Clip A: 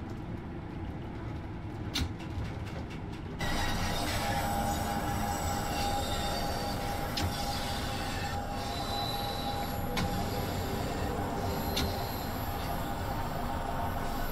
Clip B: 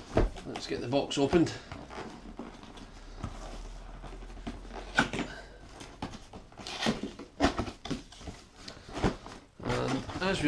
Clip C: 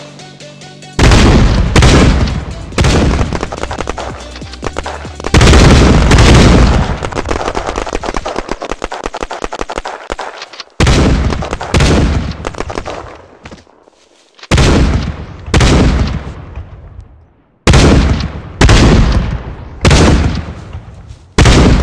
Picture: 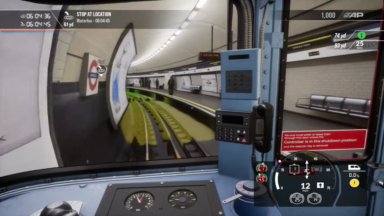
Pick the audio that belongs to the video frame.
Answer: A